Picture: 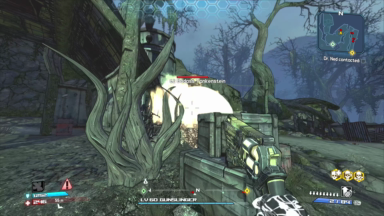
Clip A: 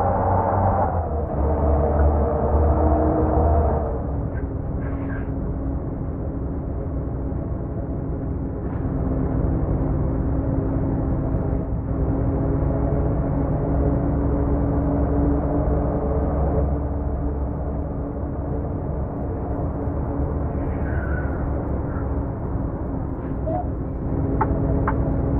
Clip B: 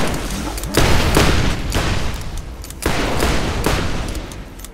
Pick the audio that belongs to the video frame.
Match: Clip B